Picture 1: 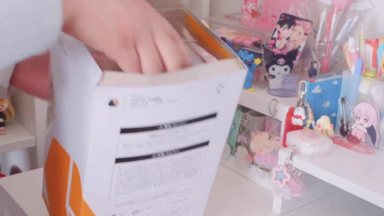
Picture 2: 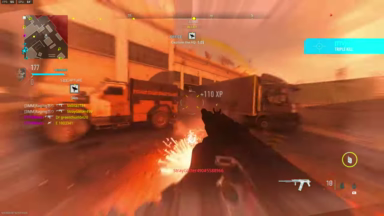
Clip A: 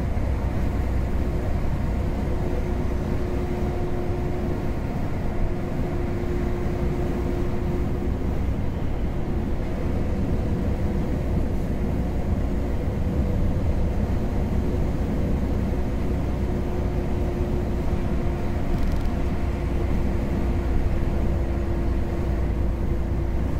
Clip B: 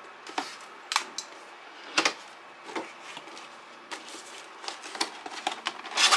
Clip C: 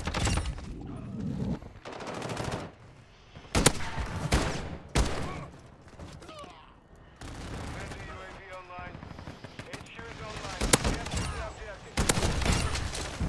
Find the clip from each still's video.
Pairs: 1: B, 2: C